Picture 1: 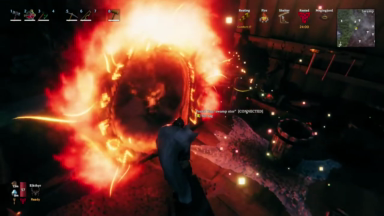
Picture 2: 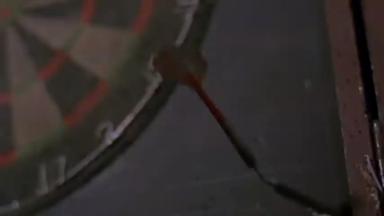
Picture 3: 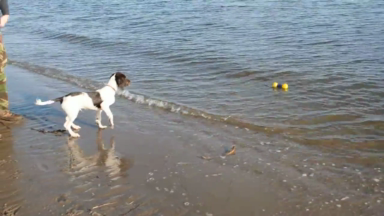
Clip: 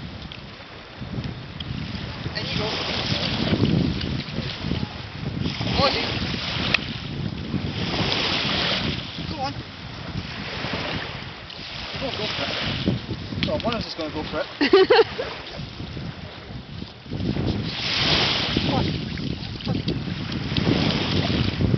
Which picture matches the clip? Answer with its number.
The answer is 3